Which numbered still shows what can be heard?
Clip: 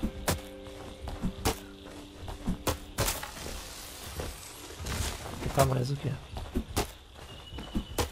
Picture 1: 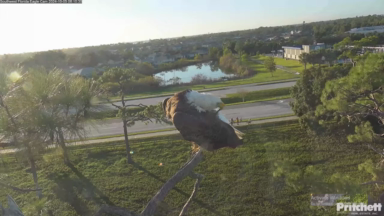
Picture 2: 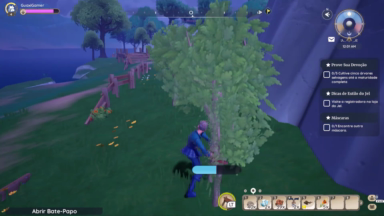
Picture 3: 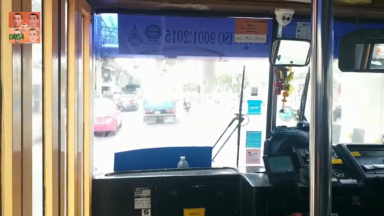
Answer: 2